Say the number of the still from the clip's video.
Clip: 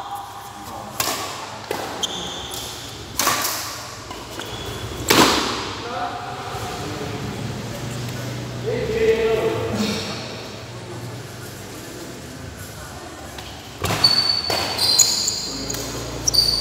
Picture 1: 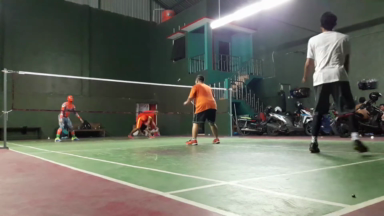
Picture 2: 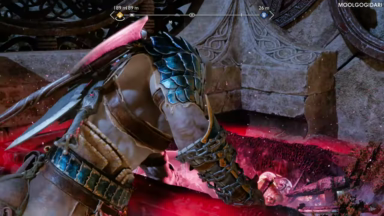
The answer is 1